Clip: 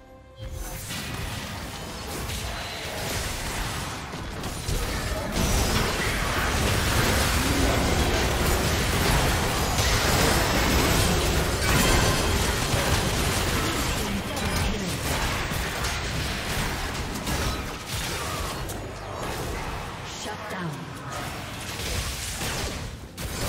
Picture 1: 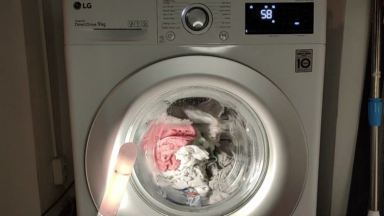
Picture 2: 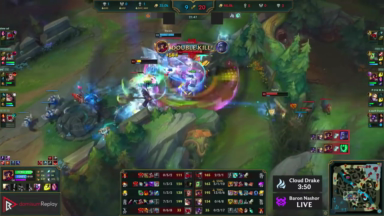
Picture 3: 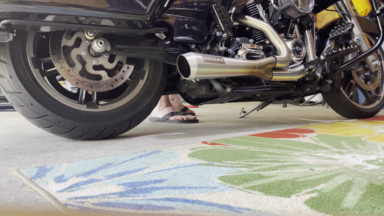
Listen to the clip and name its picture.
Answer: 2